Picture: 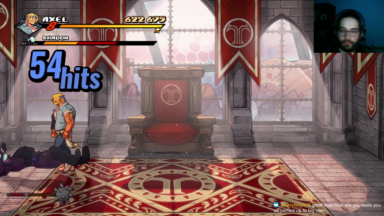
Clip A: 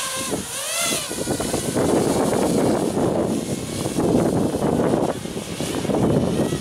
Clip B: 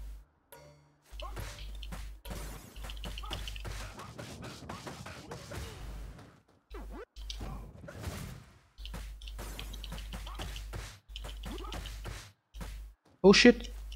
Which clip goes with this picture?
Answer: B